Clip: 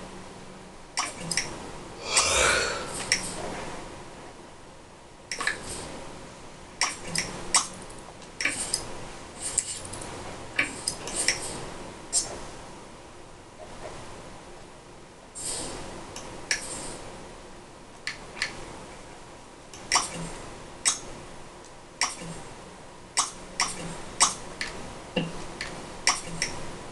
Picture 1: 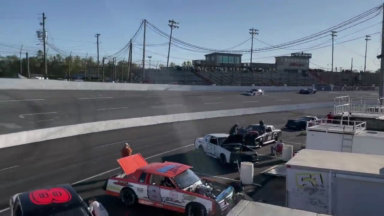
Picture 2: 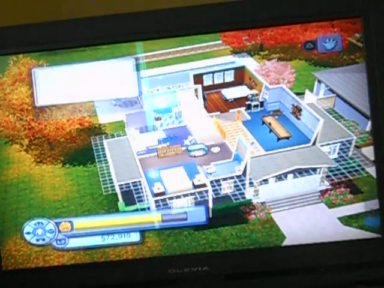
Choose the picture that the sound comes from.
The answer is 2